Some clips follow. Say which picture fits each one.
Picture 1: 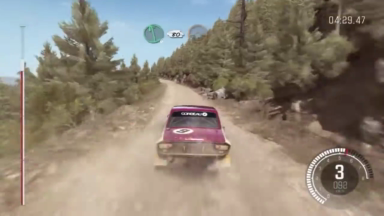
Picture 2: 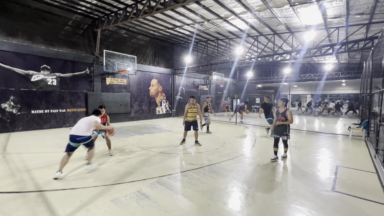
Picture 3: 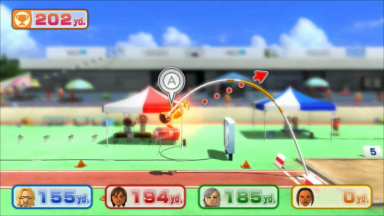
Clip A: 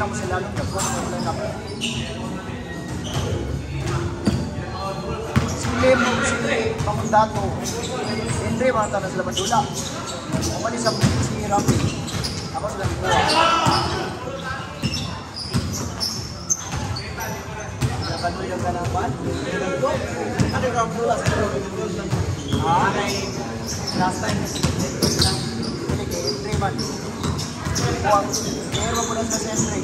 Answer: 2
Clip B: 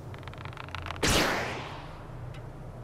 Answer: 3